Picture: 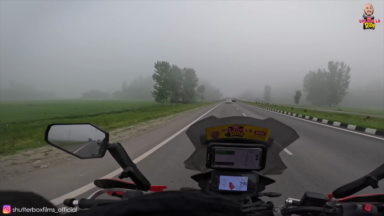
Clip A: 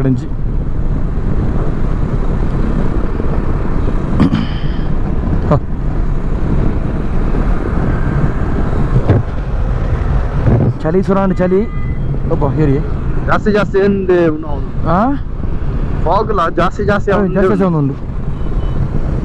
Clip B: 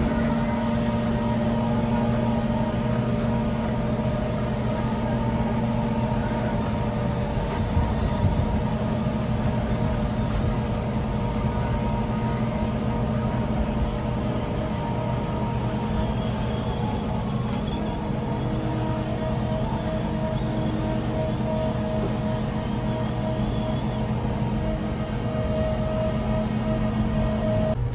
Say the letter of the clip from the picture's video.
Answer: A